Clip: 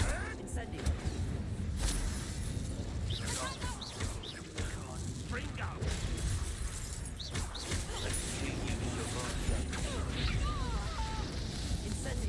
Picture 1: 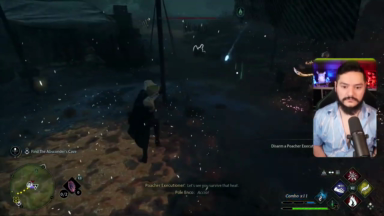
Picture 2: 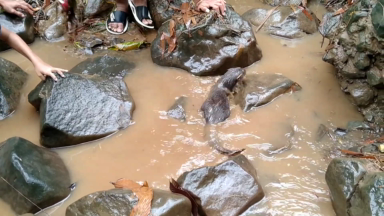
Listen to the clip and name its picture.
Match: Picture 1